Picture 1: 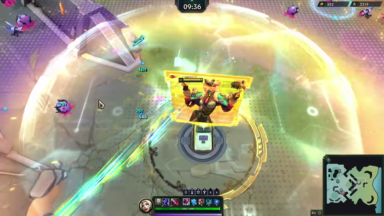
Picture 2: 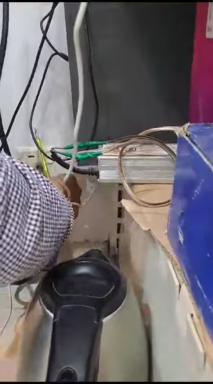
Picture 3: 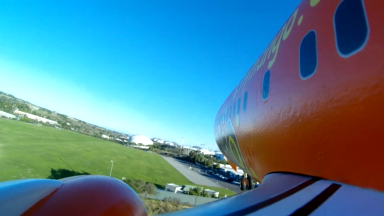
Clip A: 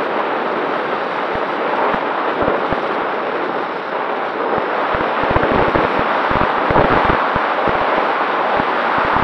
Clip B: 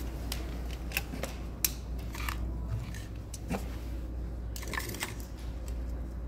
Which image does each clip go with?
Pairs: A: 3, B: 2